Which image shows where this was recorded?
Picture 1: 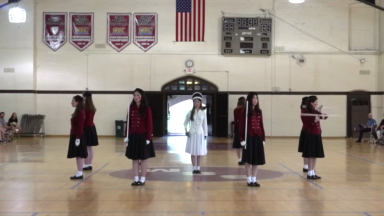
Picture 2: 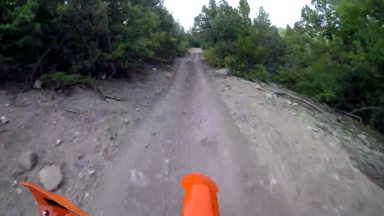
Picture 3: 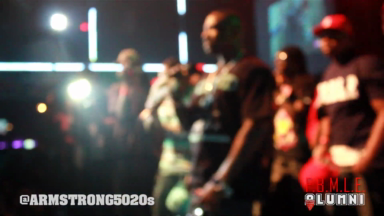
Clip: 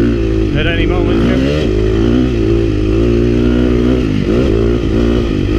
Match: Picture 2